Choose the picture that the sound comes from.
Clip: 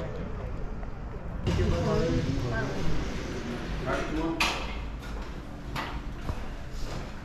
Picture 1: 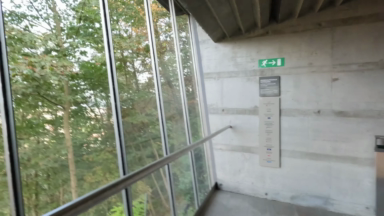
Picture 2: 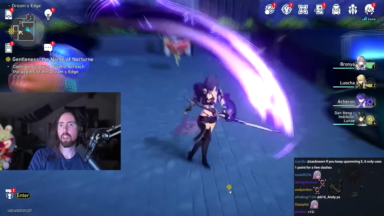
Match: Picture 1